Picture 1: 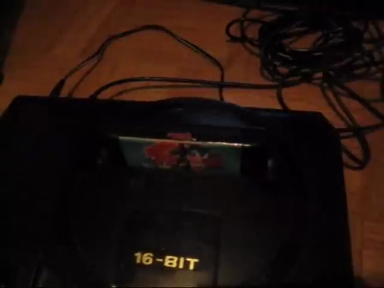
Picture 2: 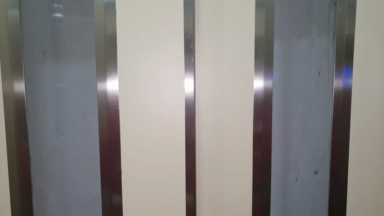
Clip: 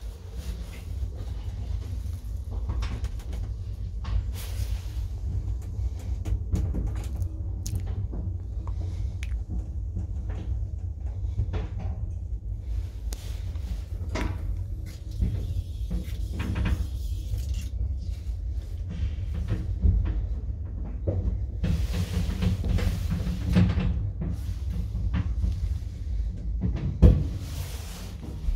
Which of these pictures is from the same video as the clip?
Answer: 2